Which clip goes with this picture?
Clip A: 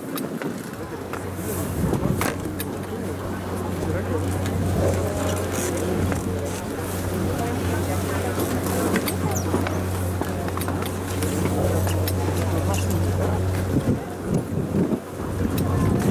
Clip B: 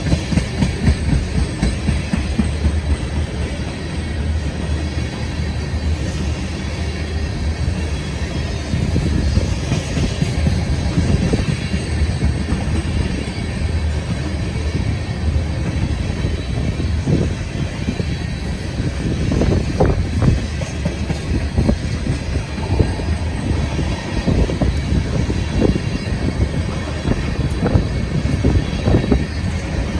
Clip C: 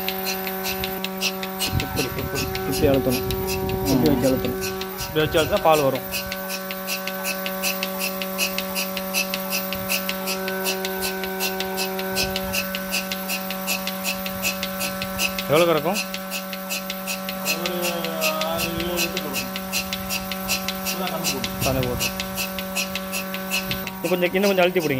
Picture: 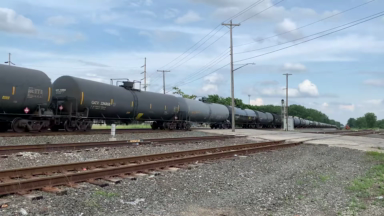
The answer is B